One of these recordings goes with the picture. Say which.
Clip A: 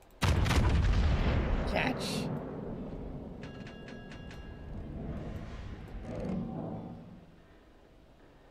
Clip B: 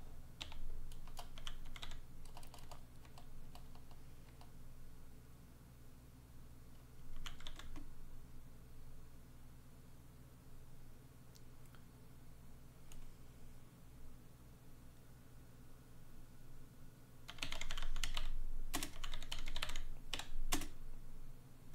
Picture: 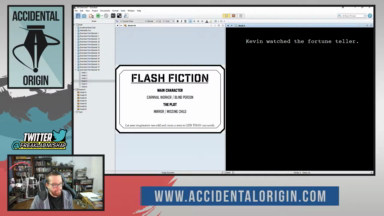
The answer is B